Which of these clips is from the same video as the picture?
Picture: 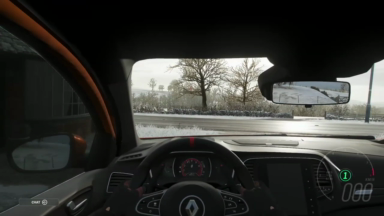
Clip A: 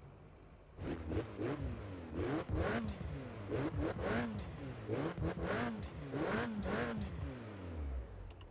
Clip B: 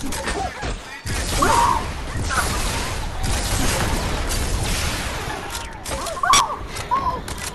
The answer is A